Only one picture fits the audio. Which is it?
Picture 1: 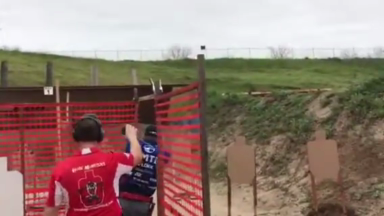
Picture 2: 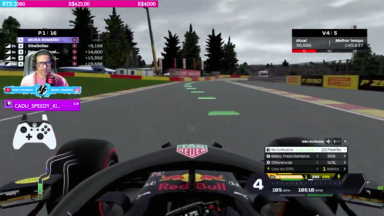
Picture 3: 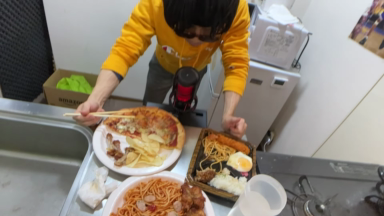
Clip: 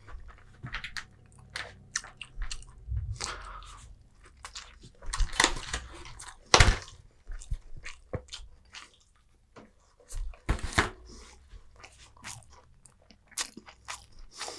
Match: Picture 3